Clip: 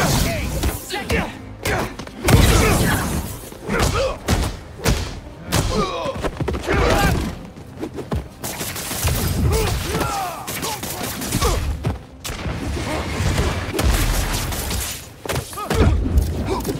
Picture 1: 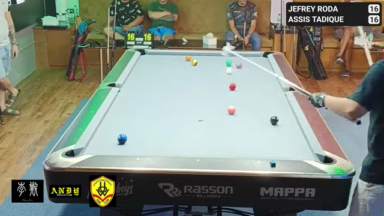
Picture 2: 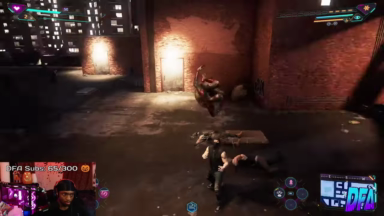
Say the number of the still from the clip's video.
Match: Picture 2